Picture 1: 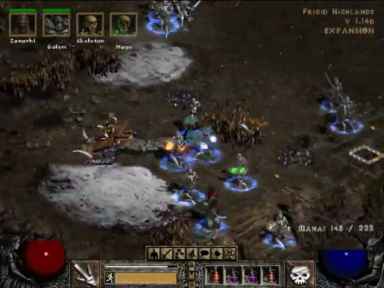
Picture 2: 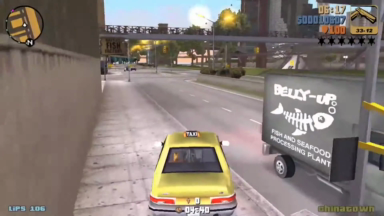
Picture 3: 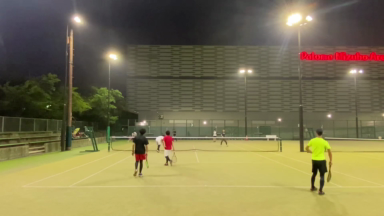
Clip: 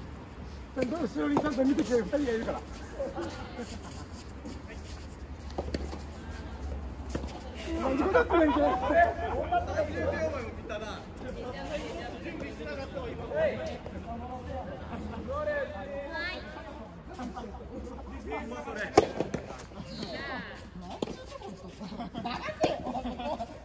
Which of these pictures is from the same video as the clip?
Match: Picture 3